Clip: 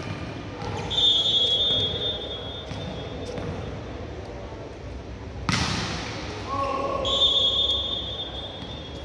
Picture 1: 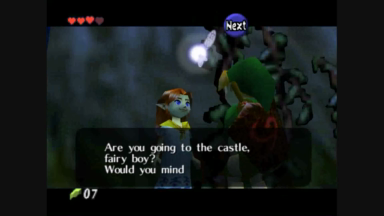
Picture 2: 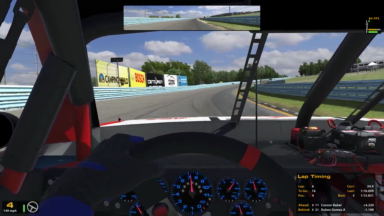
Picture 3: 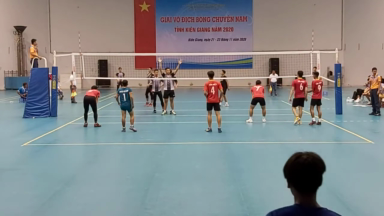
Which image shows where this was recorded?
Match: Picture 3